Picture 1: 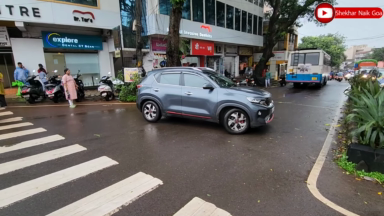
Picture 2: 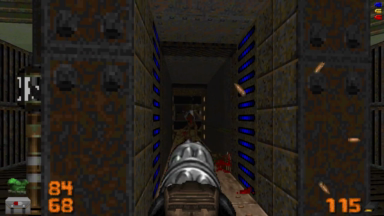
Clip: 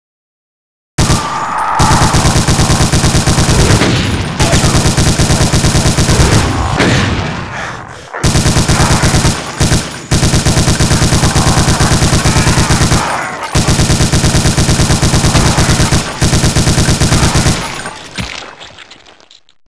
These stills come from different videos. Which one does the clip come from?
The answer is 2